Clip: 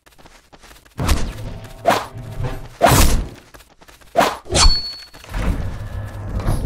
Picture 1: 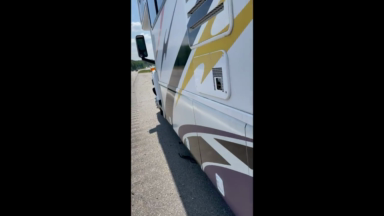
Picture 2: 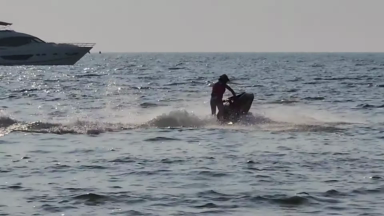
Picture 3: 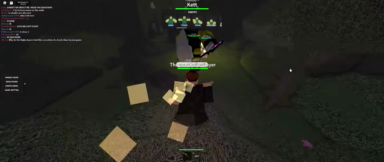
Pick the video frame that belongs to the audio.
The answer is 3